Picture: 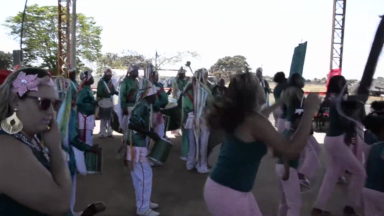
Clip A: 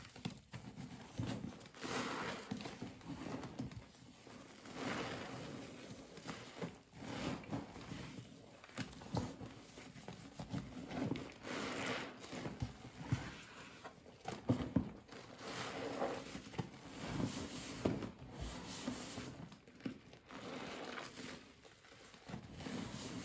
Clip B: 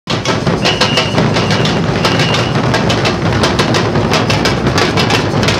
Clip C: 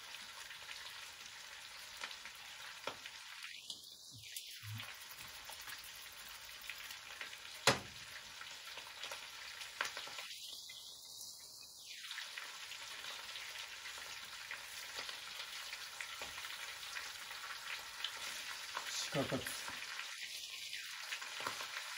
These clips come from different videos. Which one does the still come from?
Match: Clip B